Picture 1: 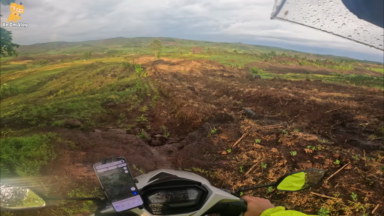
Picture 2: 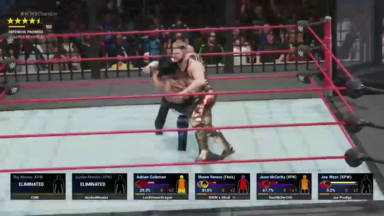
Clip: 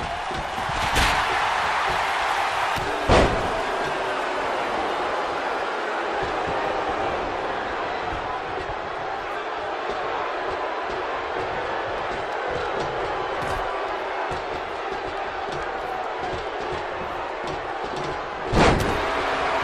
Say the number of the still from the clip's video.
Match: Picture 2